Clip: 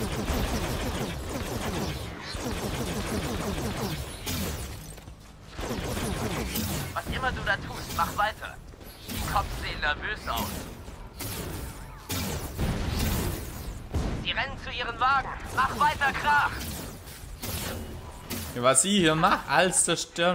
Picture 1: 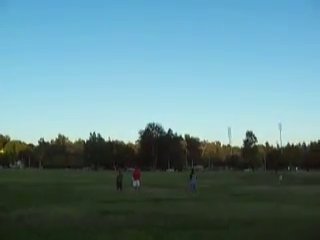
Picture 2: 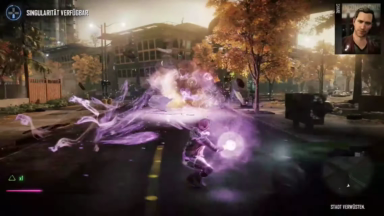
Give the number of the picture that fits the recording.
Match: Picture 2